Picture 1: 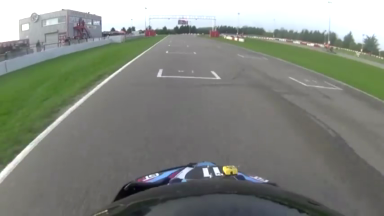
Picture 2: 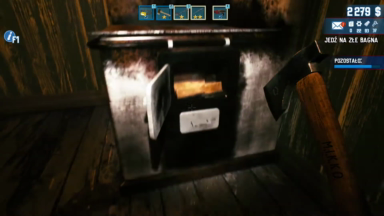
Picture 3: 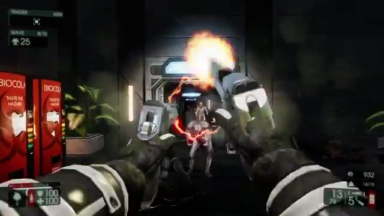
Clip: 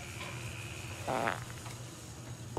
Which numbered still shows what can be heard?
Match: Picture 2